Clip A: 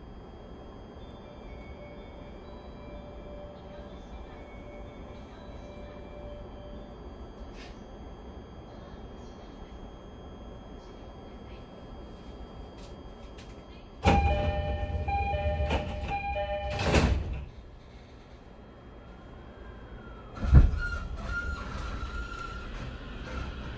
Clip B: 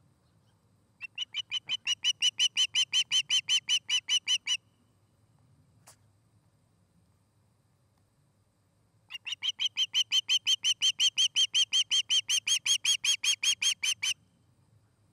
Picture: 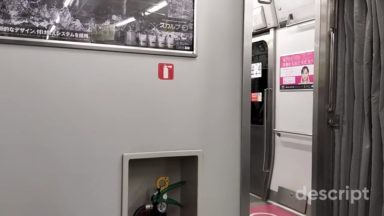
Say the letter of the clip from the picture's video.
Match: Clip A